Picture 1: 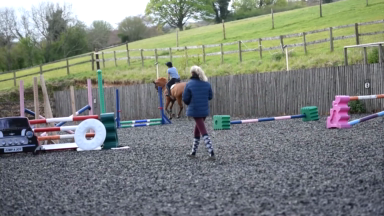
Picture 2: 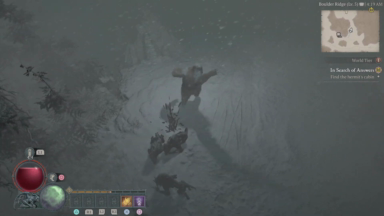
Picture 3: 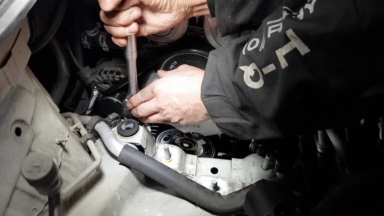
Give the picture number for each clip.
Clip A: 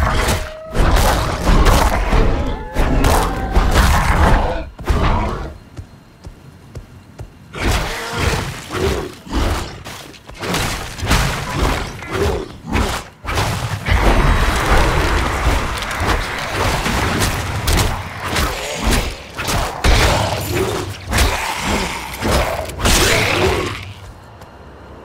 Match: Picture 2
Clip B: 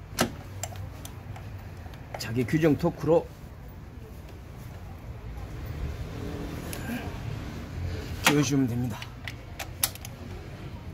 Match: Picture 3